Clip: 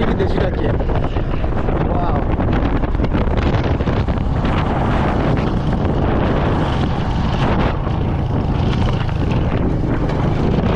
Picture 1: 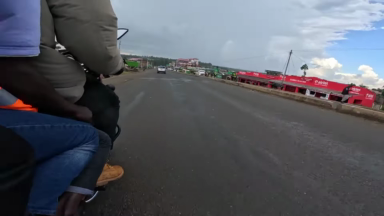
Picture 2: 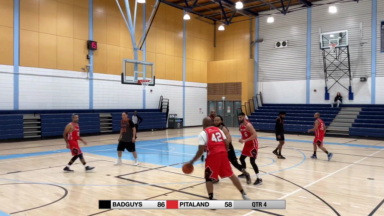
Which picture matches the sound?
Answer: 1